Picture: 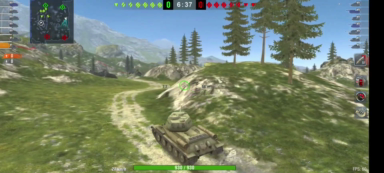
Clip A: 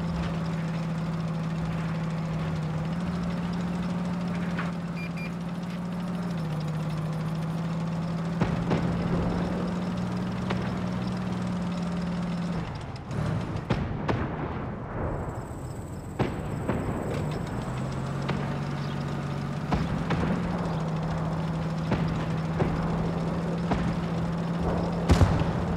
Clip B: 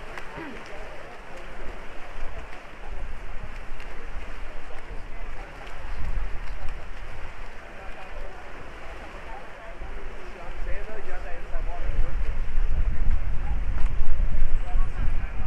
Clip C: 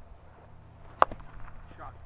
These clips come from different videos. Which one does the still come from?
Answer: A